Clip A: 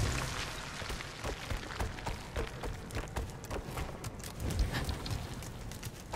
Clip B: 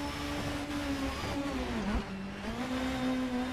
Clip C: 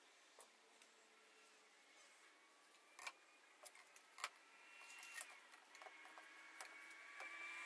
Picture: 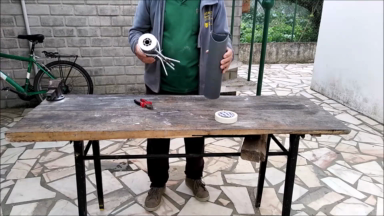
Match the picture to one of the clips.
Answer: C